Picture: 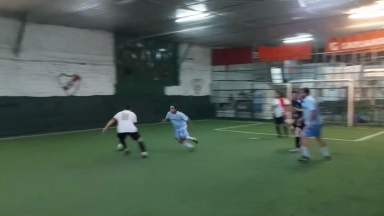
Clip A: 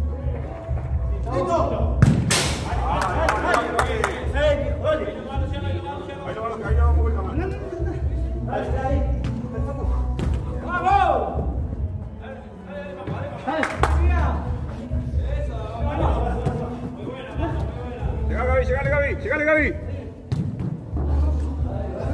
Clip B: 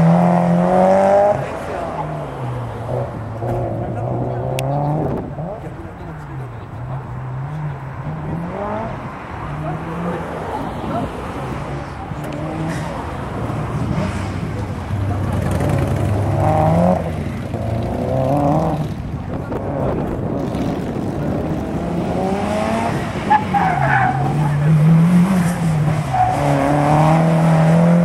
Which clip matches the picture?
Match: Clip A